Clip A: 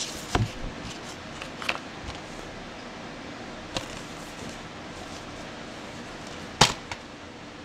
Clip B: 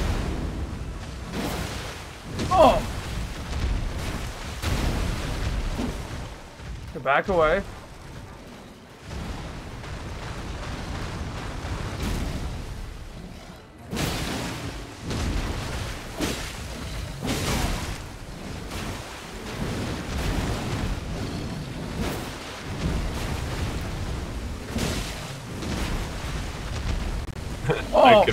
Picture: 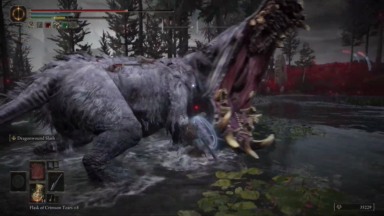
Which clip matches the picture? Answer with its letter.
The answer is B